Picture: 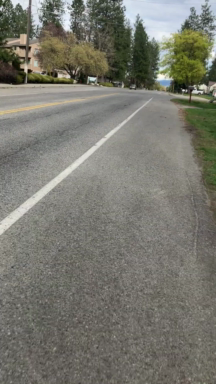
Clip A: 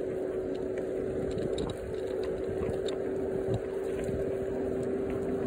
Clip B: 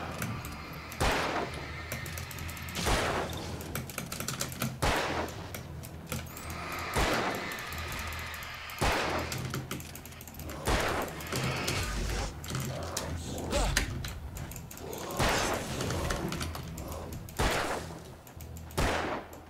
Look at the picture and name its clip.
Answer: A